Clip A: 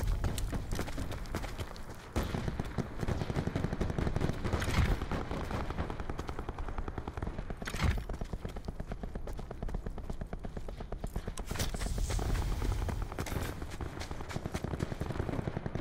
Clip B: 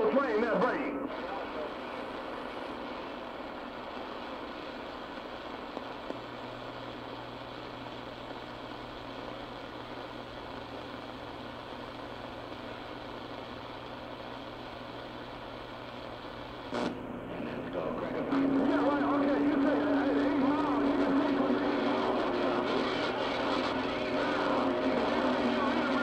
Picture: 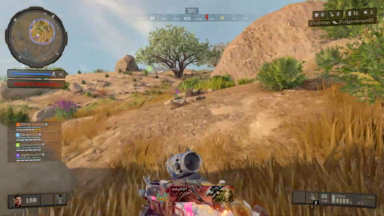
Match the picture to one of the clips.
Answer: A